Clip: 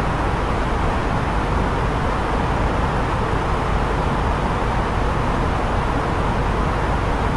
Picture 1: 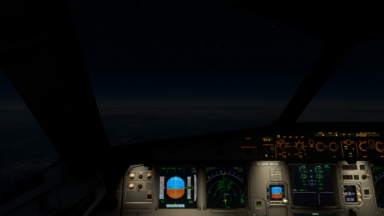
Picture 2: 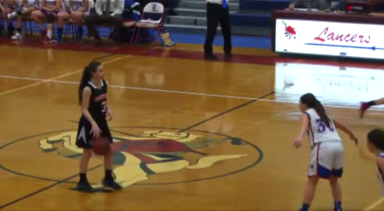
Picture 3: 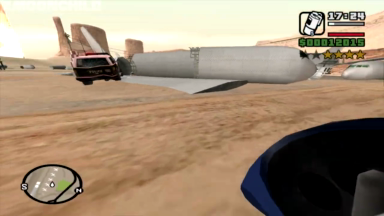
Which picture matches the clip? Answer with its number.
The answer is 1